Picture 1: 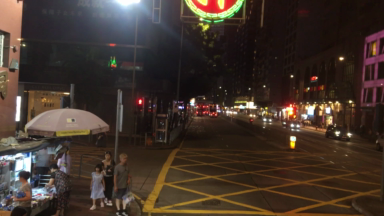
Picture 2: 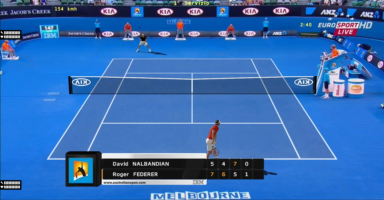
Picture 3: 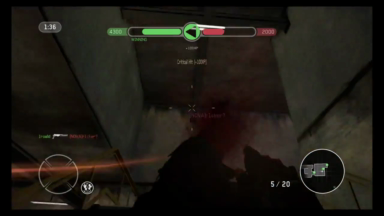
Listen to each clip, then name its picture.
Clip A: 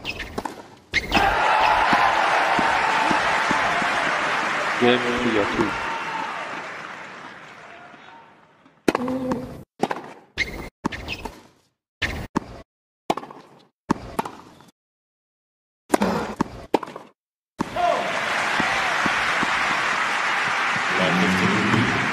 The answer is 2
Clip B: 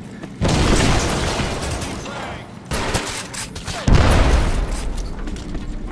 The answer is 3